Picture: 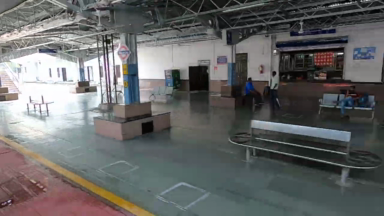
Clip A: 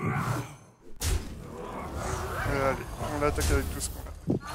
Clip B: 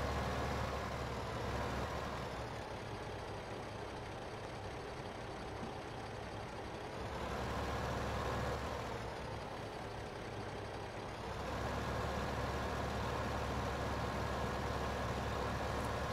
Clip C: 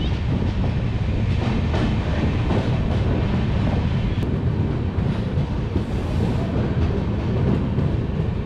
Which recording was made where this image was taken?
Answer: C